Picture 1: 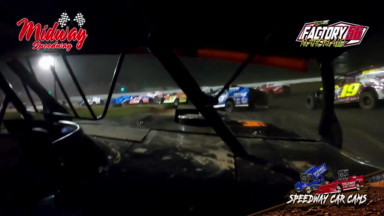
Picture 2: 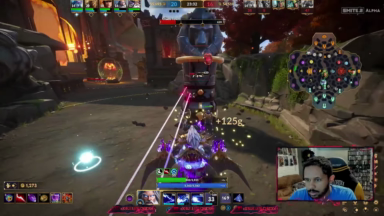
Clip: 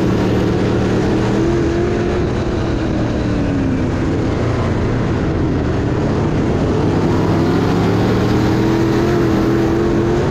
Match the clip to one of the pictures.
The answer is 1